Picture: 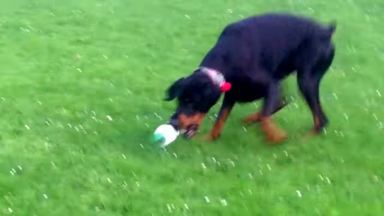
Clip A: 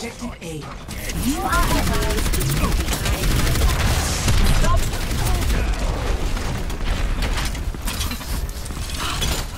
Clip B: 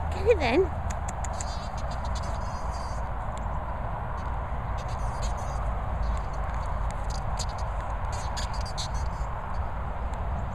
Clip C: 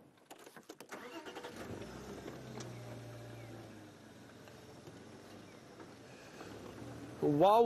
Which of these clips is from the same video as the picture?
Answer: B